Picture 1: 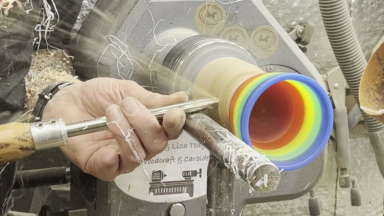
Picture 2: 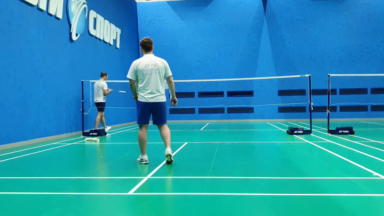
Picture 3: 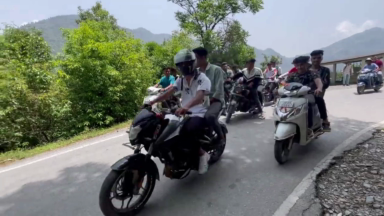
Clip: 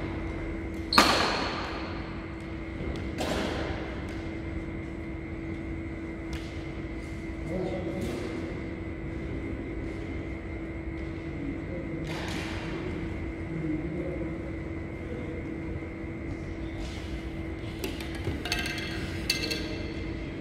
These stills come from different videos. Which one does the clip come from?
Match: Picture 2